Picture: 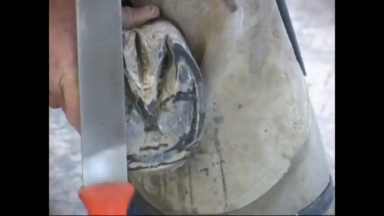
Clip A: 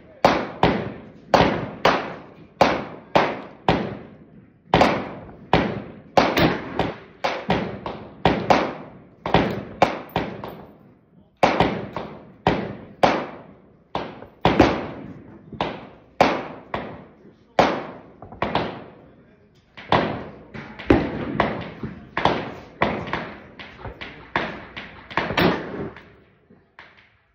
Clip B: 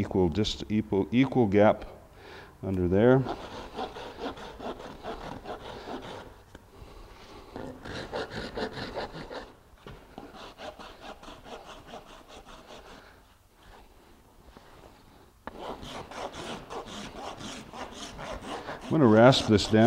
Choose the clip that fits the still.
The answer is B